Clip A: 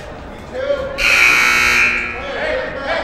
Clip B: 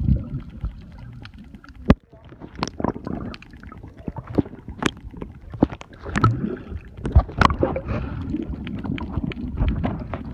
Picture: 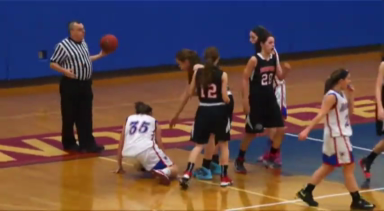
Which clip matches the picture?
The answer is A